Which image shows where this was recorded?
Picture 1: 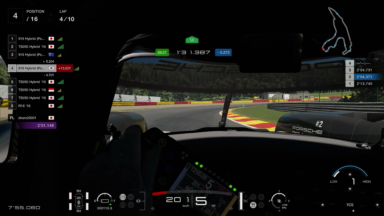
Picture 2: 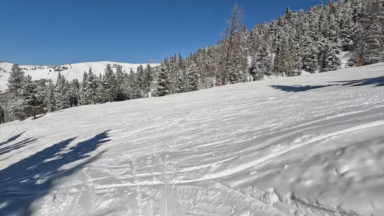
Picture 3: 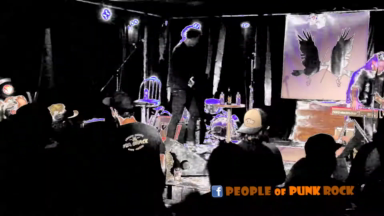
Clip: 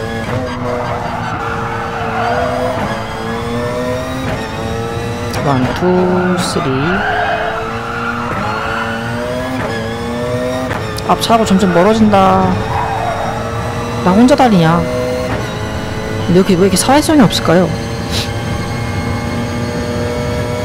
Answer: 1